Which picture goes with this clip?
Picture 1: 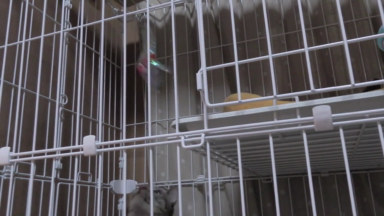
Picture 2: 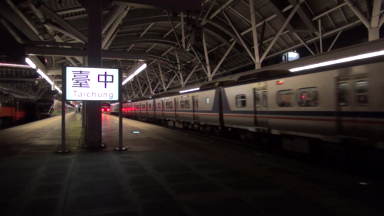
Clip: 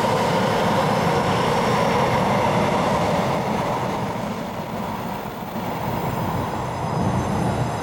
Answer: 2